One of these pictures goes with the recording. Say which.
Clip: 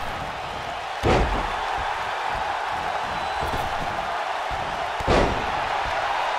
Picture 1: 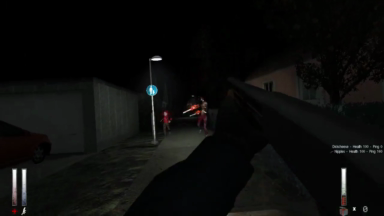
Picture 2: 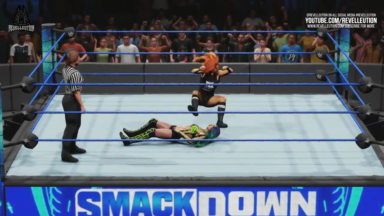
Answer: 2